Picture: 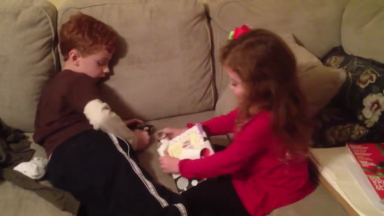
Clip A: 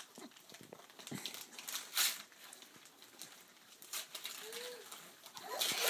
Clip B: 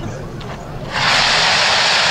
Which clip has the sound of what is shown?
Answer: A